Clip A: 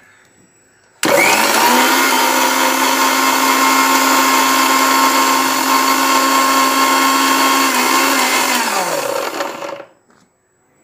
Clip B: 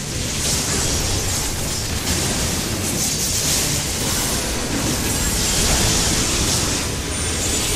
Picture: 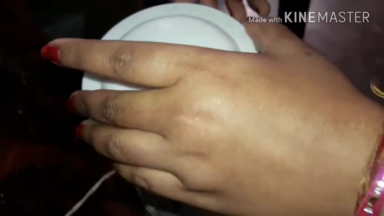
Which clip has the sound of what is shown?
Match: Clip A